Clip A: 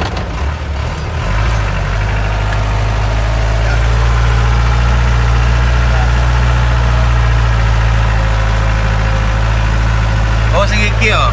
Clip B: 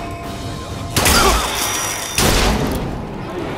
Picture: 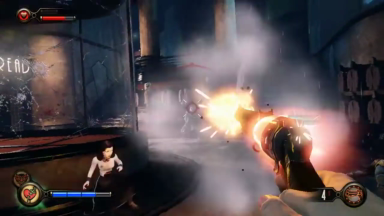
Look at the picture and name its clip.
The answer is B